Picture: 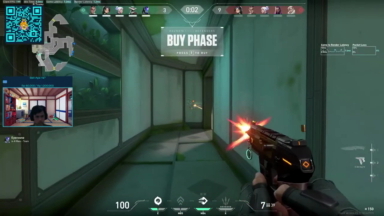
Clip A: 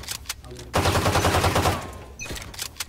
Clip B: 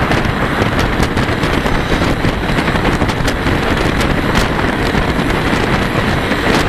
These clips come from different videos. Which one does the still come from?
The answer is A